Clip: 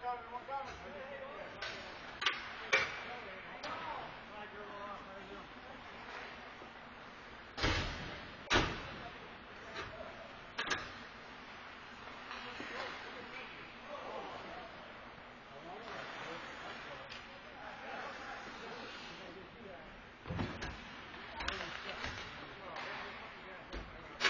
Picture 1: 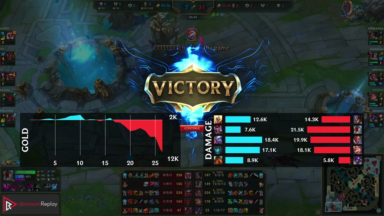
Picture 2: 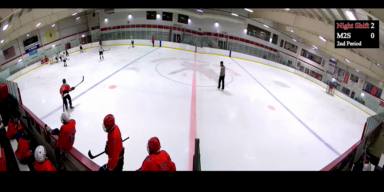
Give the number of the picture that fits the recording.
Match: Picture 2